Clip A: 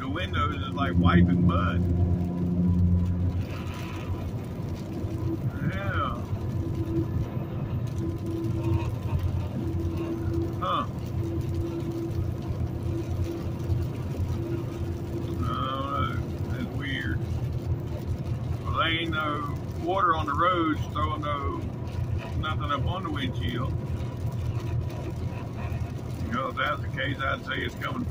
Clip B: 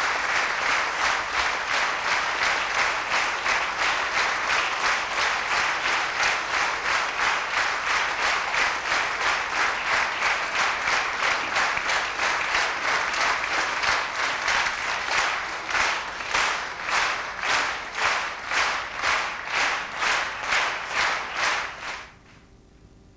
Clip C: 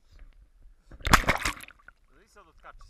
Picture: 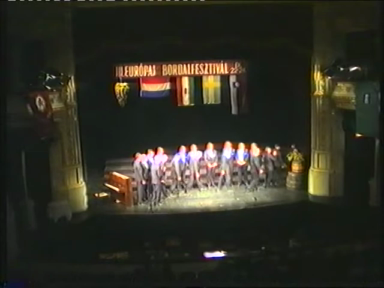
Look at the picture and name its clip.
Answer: B